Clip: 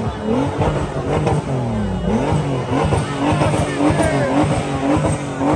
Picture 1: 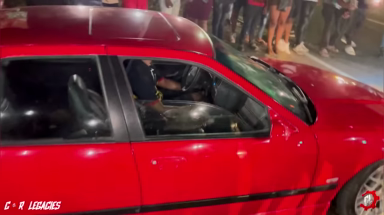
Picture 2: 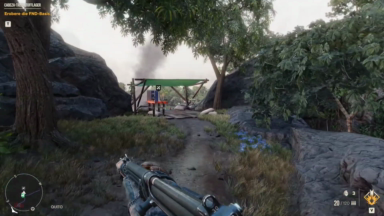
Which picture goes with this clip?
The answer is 1